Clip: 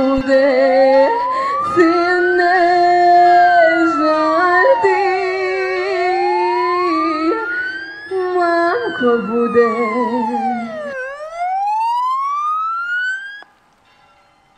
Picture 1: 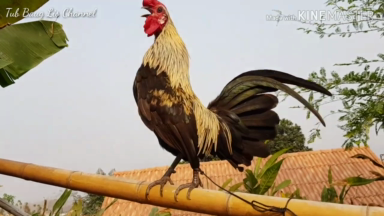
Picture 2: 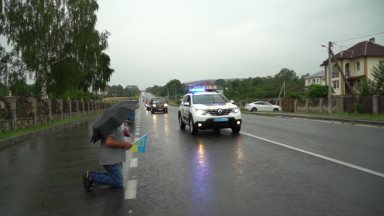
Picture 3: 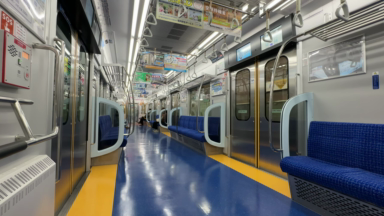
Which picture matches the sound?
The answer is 2